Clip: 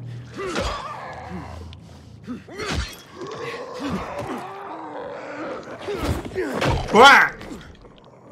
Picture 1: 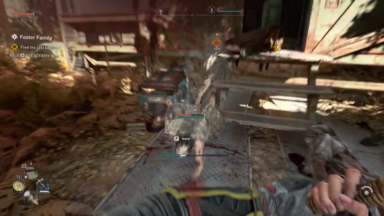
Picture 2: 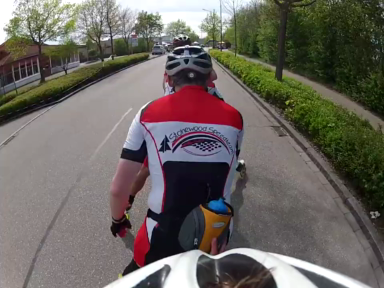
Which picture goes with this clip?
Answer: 1